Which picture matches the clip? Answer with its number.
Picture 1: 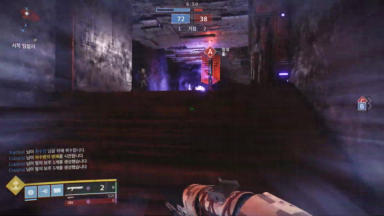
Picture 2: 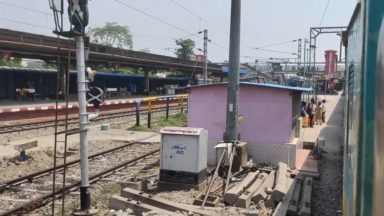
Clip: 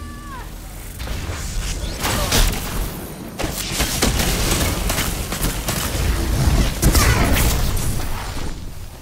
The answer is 1